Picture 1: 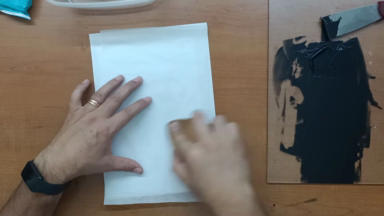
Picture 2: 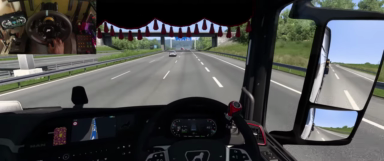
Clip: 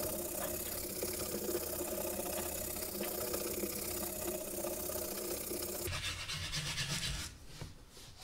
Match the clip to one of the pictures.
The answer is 1